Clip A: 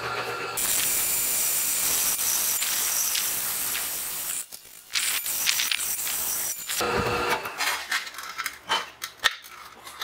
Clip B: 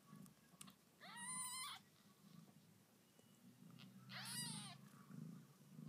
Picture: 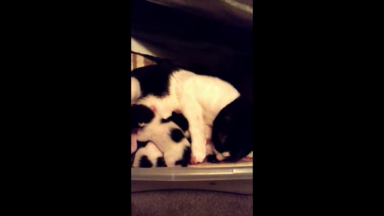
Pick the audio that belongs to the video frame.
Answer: B